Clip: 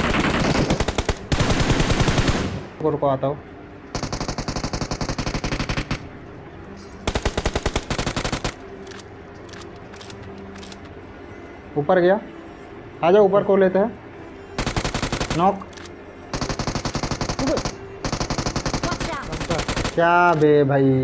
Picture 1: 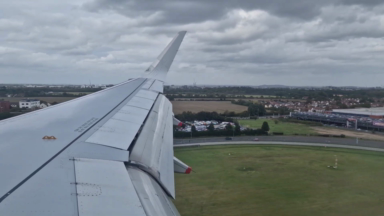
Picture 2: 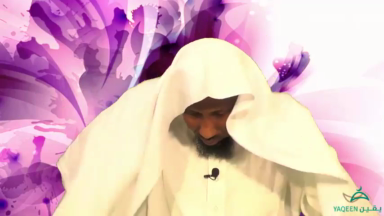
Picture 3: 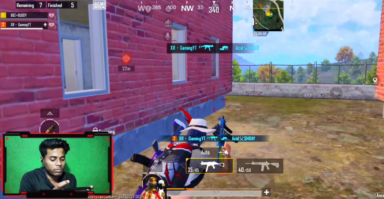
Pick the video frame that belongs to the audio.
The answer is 3